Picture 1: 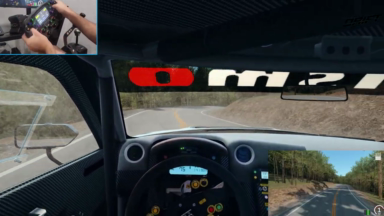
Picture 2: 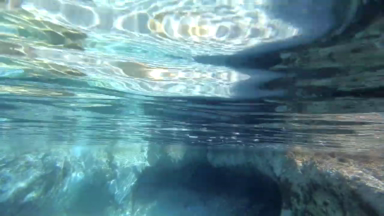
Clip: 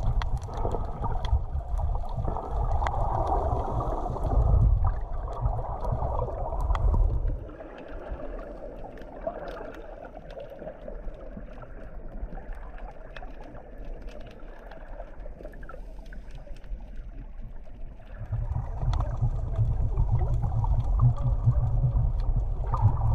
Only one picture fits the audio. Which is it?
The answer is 2